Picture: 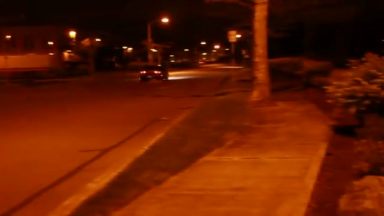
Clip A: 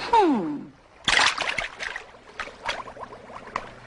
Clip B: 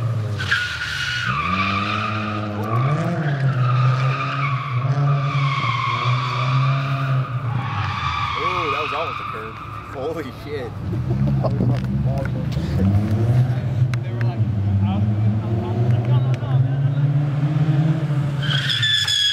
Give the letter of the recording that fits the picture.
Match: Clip B